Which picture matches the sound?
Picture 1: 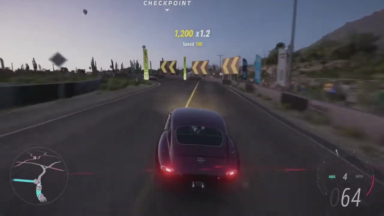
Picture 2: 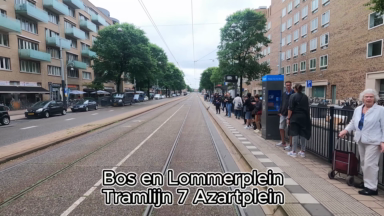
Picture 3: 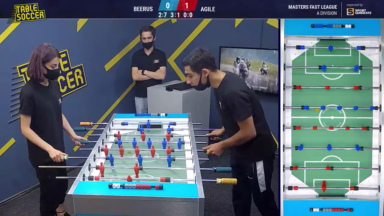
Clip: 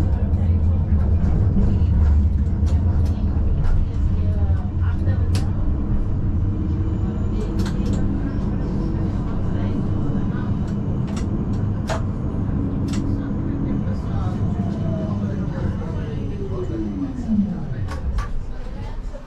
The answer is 2